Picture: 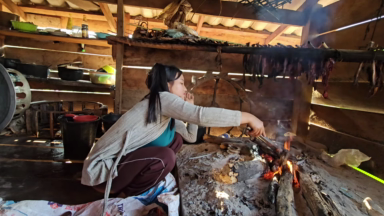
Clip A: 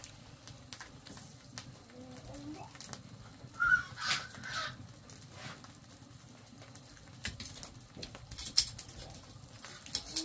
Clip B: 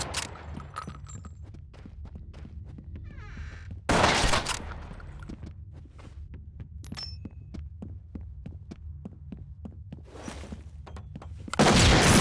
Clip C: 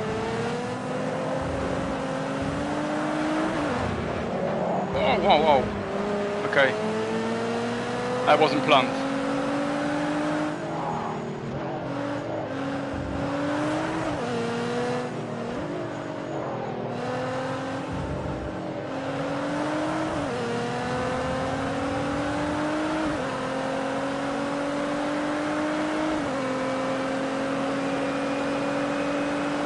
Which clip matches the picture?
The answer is A